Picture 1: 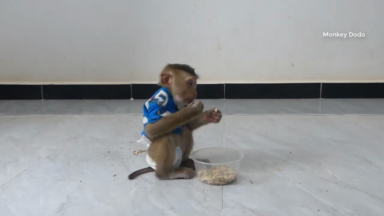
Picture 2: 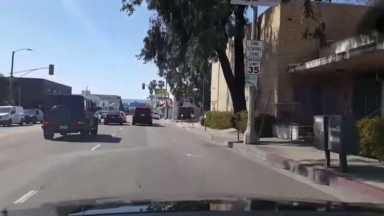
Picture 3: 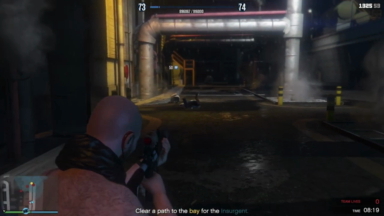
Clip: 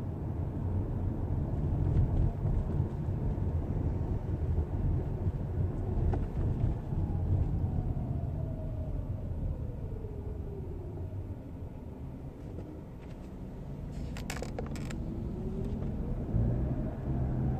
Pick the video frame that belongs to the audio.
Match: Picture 2